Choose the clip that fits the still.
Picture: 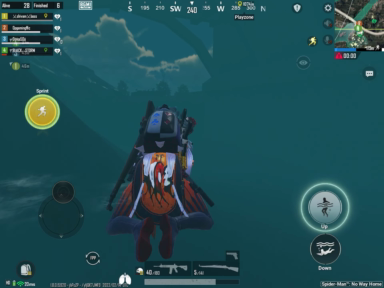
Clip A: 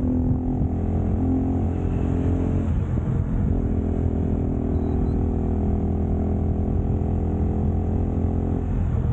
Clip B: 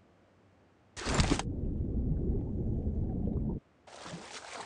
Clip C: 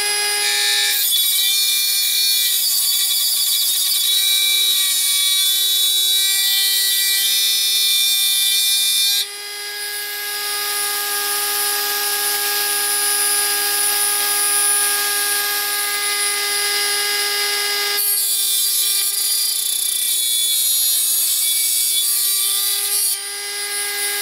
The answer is B